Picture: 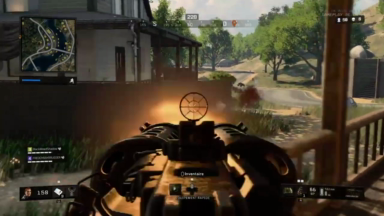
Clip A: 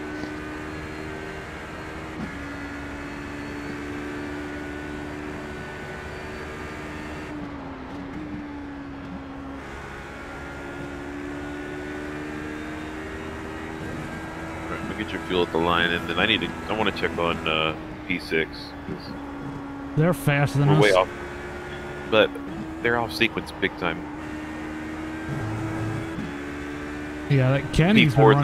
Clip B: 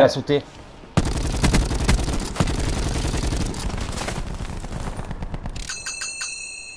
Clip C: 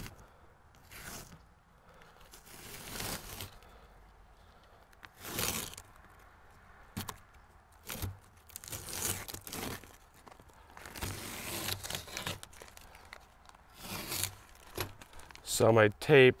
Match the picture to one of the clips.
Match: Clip B